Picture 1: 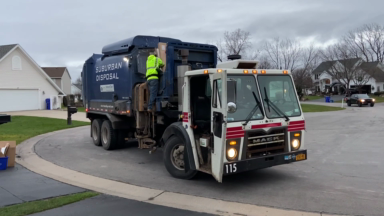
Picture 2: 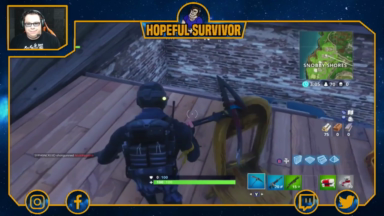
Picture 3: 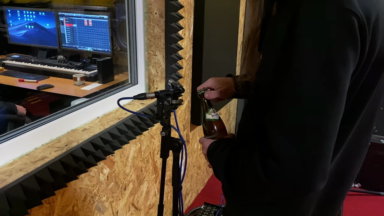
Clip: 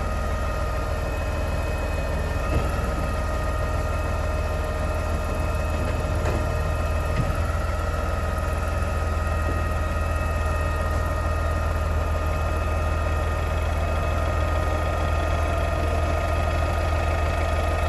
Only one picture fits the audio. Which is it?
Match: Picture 1